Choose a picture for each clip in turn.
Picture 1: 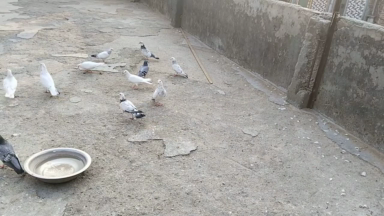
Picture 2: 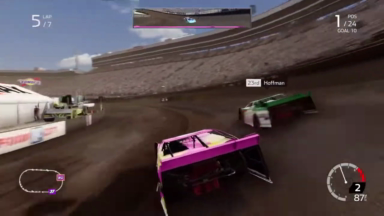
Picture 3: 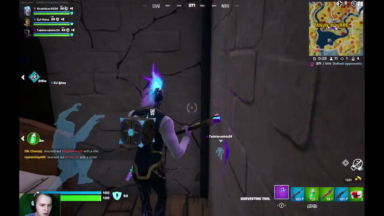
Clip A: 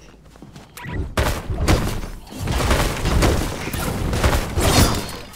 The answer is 3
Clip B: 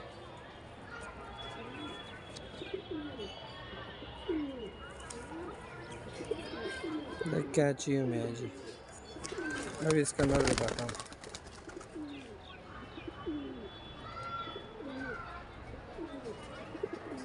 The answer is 1